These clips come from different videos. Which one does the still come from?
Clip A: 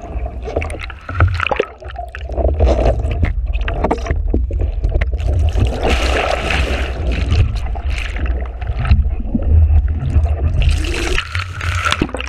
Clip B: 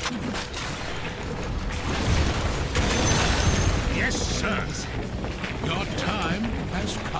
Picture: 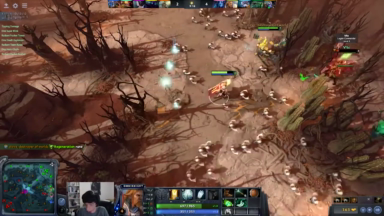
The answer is B